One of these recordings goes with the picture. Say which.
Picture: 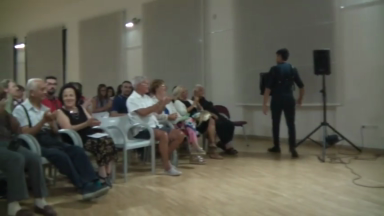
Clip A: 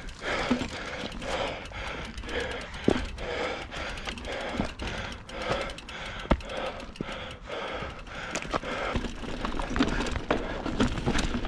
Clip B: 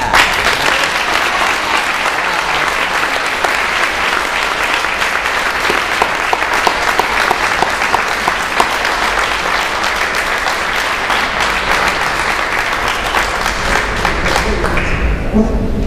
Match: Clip B